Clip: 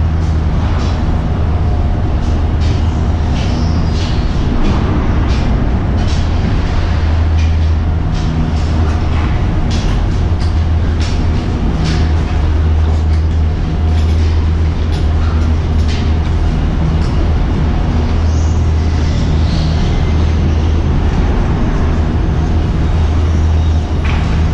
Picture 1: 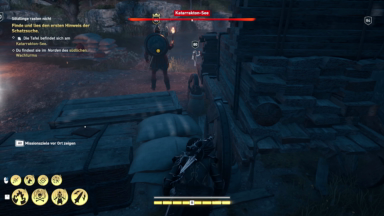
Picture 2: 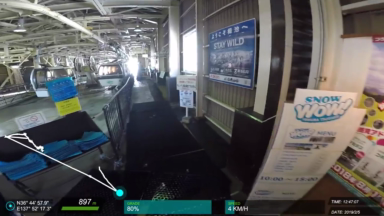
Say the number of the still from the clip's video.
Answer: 2